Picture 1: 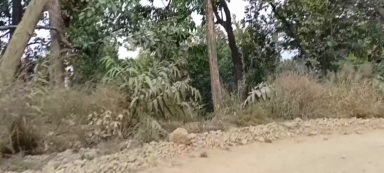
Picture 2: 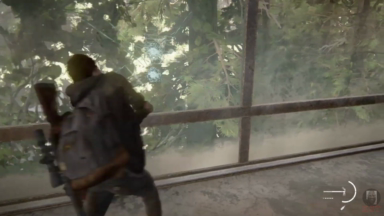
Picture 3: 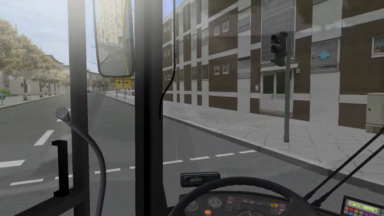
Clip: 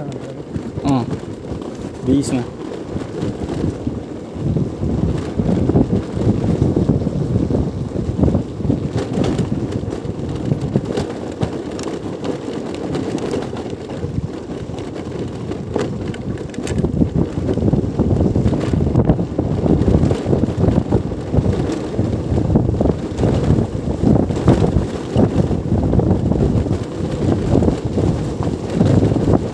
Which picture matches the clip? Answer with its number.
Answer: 1